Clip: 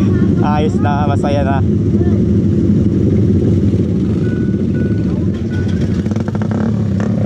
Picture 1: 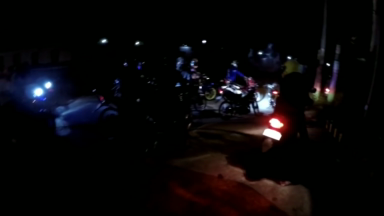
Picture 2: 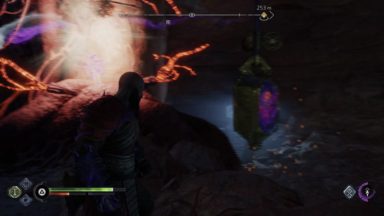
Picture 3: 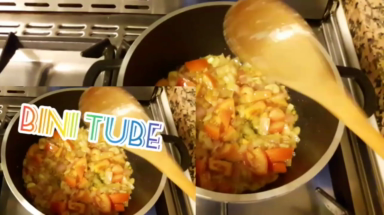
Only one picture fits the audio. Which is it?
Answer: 1